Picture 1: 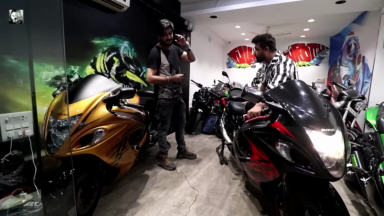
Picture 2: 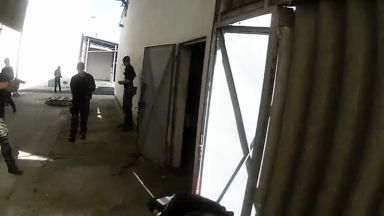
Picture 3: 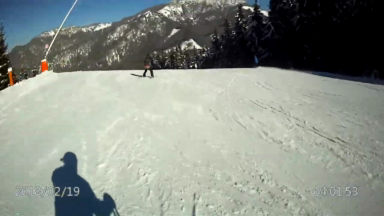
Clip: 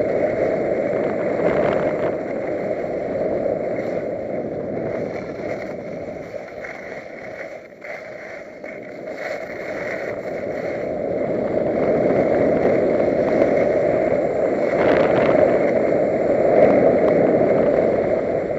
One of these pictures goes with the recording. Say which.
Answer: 3